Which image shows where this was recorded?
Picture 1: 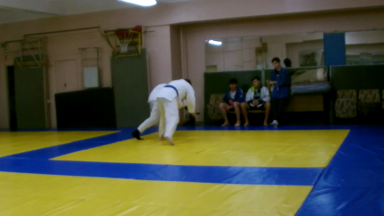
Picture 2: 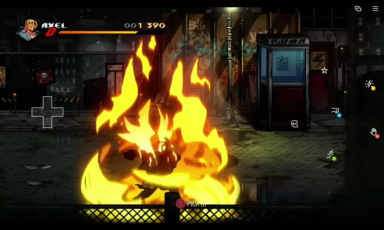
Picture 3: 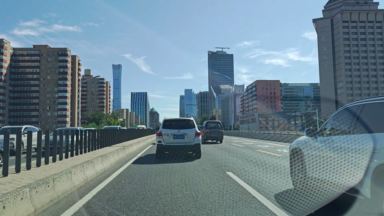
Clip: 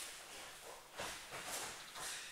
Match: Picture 1